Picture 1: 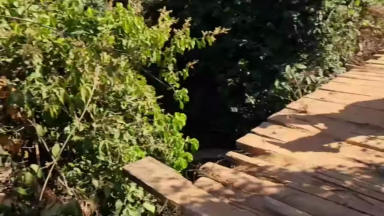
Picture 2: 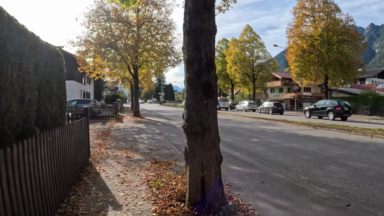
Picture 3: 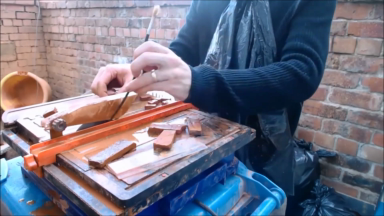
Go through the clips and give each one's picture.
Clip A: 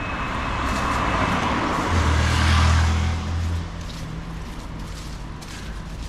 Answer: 2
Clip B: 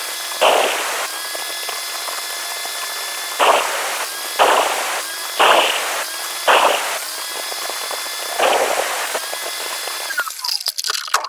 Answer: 3